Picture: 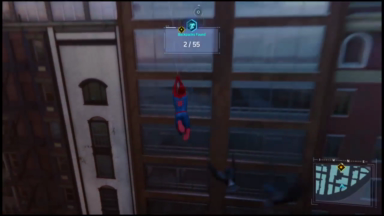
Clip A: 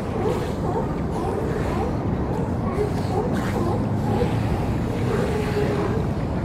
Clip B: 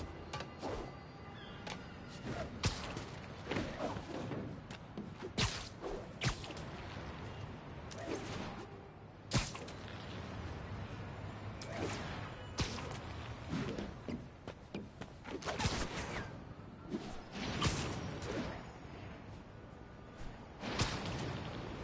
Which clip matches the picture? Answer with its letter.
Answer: B